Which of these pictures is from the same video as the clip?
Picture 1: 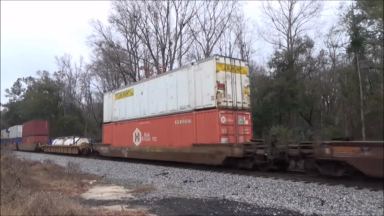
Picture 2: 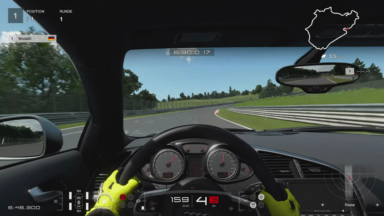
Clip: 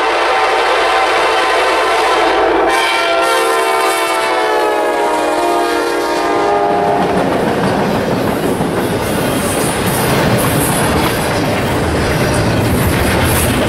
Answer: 1